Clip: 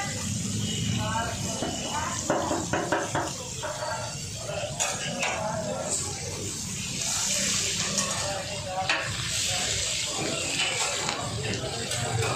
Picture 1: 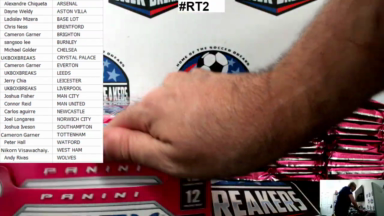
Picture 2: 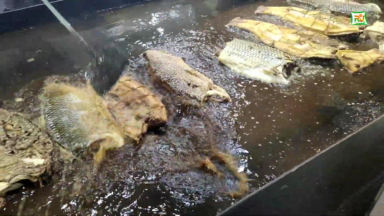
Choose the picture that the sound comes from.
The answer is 2